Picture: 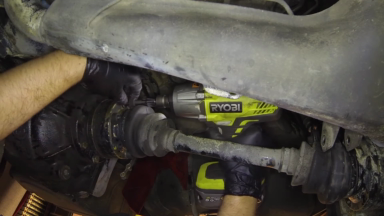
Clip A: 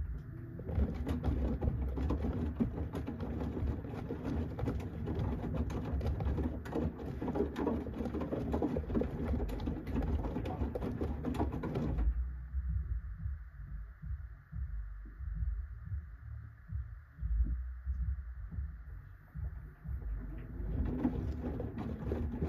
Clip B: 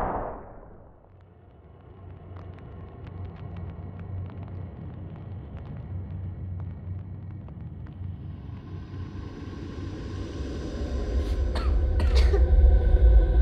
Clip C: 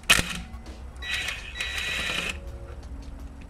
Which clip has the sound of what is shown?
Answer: C